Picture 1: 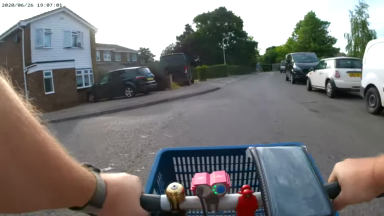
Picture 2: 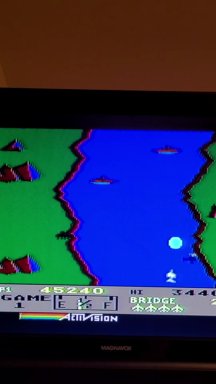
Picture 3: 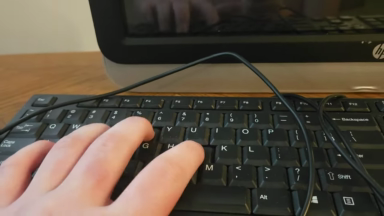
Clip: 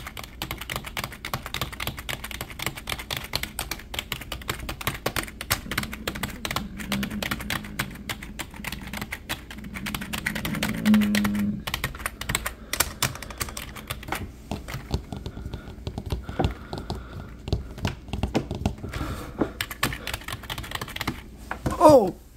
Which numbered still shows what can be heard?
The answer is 3